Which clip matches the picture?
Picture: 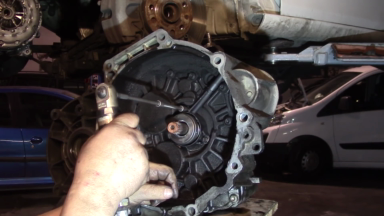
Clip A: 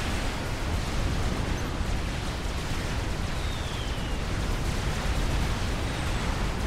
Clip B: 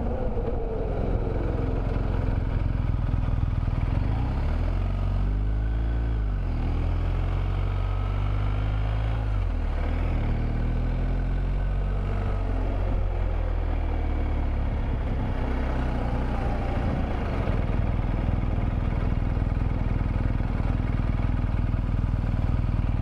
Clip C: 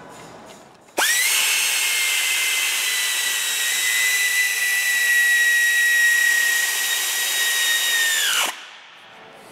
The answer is C